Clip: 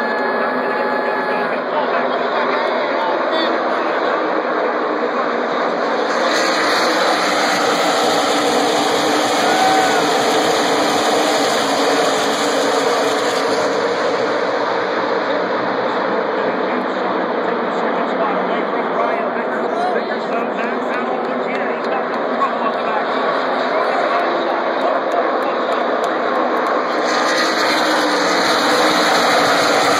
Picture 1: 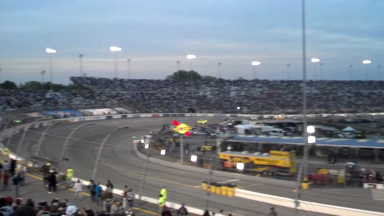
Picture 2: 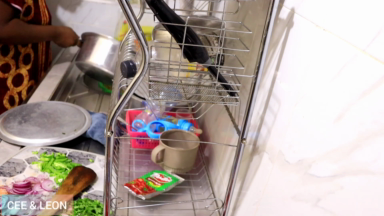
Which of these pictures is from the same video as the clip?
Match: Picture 1